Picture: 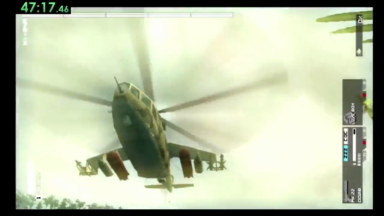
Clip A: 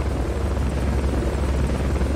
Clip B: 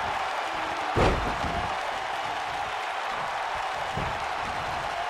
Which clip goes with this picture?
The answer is A